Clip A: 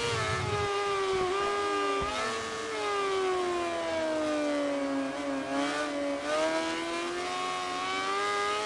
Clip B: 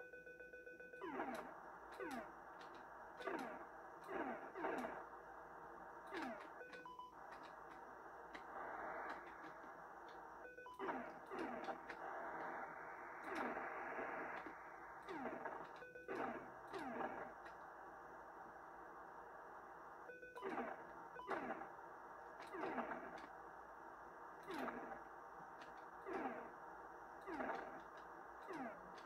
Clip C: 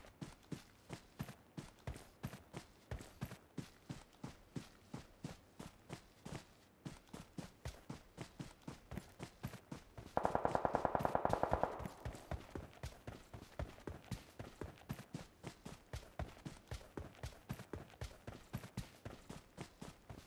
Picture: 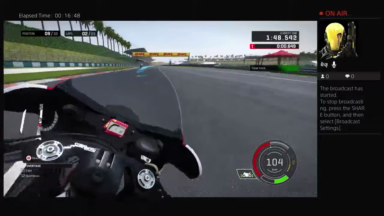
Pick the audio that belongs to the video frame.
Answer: A